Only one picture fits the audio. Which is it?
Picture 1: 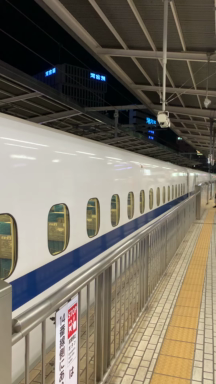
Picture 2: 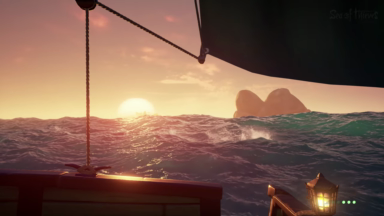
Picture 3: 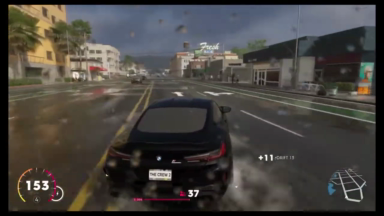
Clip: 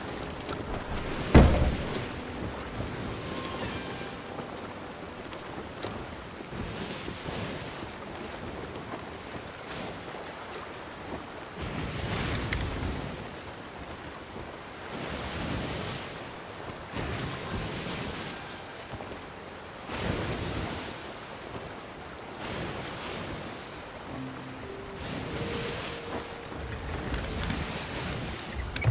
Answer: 2